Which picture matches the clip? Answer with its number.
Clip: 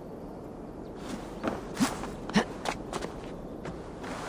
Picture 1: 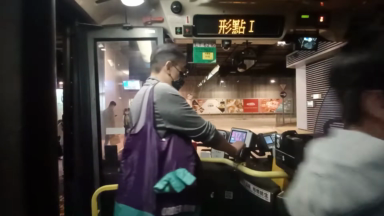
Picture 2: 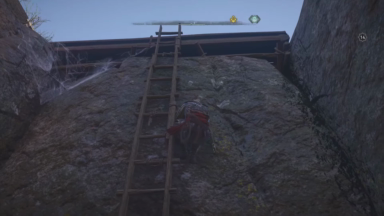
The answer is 2